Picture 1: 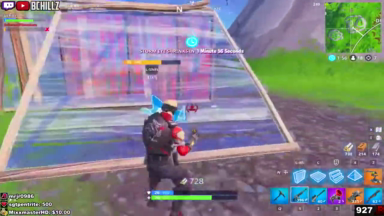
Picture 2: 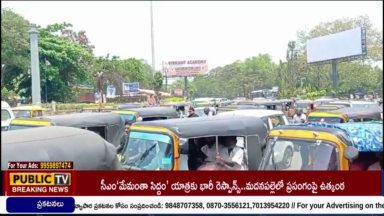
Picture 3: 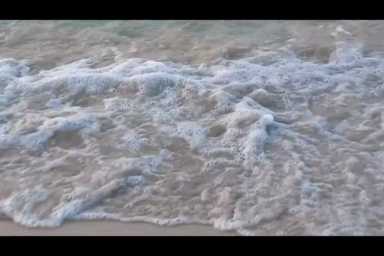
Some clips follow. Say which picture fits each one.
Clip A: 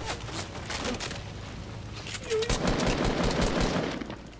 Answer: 1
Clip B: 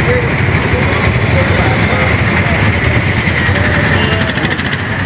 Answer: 2